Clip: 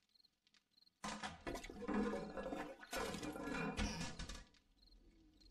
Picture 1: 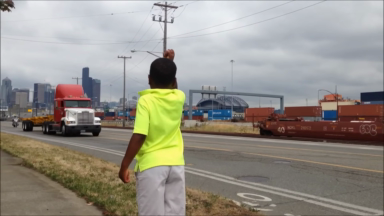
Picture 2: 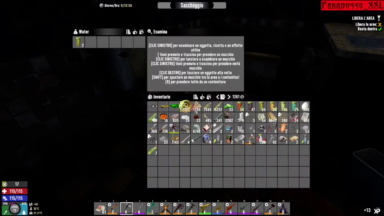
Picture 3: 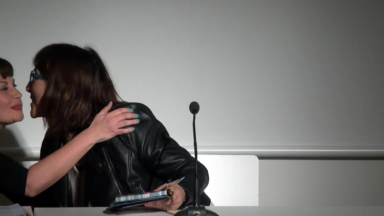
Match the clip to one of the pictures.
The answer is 2